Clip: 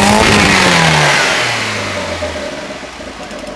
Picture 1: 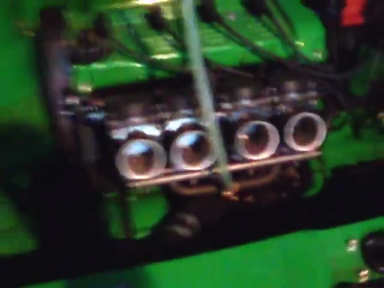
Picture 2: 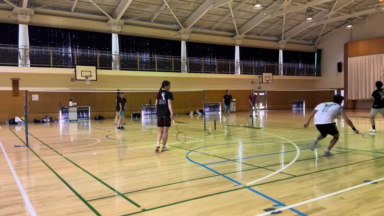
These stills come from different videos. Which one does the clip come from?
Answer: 1